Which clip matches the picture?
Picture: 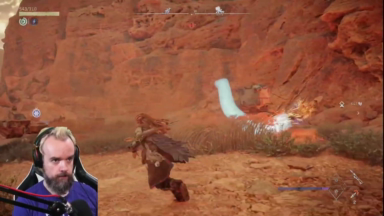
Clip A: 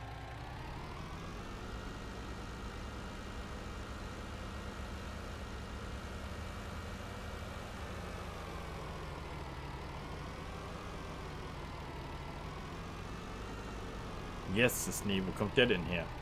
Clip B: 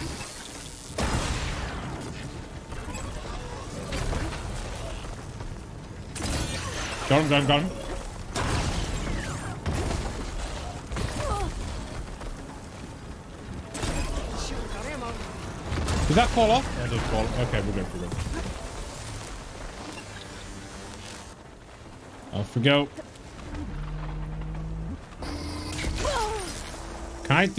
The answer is B